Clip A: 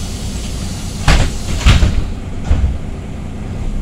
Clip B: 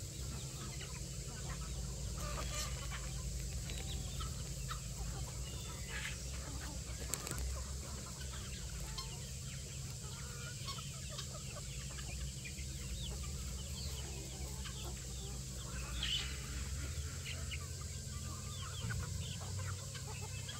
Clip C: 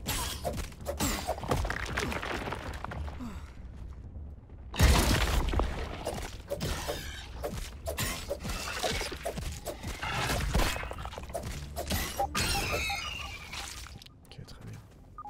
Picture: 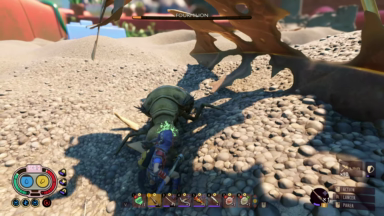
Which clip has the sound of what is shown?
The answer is C